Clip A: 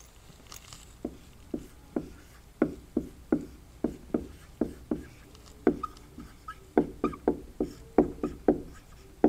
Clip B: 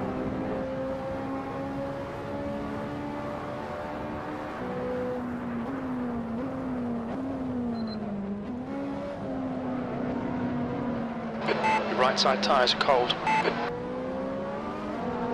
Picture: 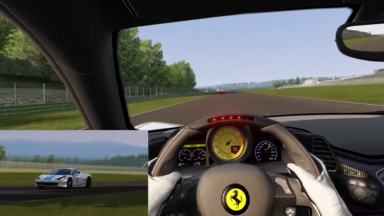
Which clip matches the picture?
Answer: B